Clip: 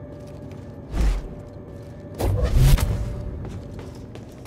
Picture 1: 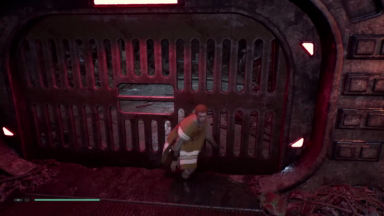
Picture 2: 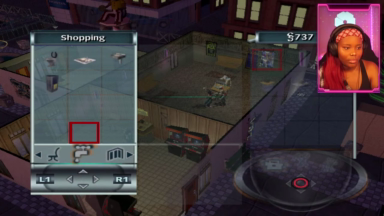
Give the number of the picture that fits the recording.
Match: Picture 1